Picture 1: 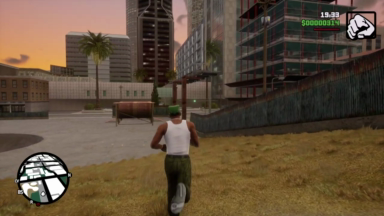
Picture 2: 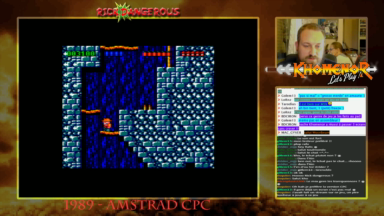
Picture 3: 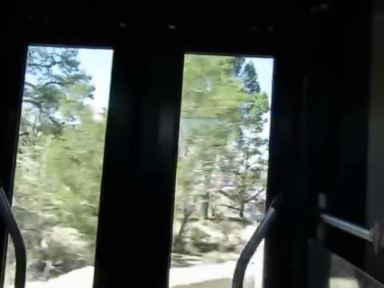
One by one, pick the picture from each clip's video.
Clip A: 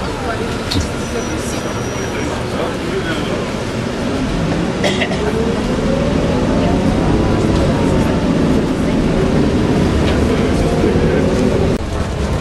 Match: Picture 3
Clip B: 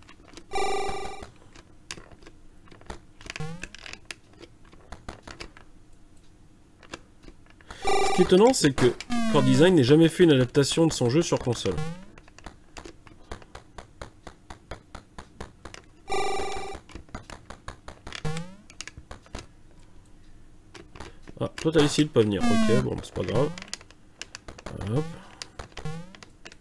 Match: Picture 2